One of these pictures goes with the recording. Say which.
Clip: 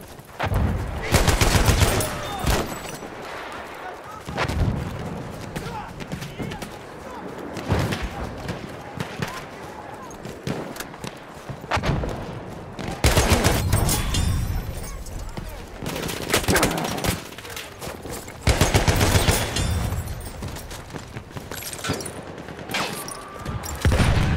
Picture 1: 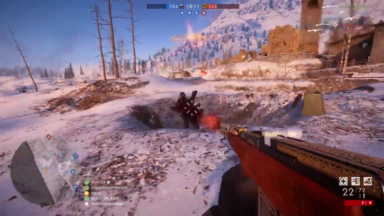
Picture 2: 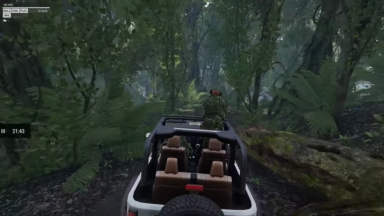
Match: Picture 1